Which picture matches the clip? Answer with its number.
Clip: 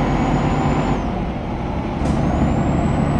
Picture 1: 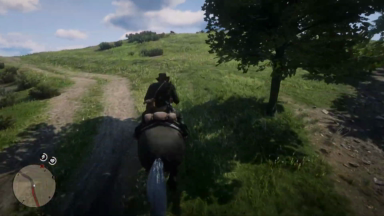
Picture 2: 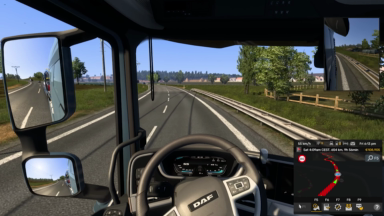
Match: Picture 2